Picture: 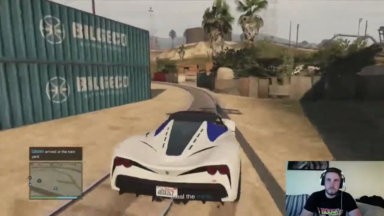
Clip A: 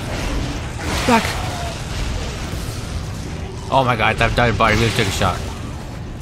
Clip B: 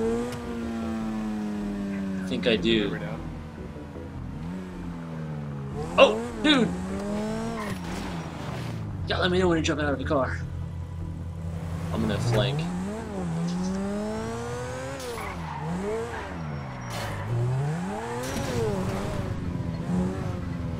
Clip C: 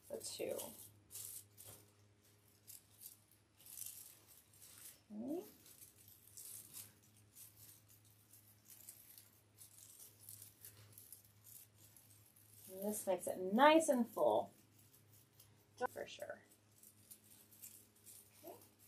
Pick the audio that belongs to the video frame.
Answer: B